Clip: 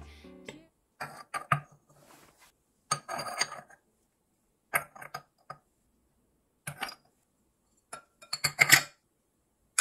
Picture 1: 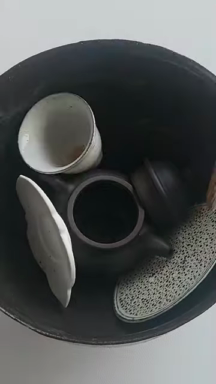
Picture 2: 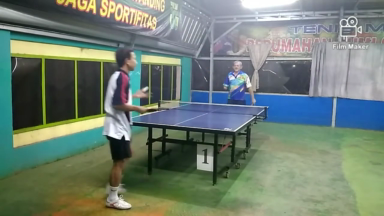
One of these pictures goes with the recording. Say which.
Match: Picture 1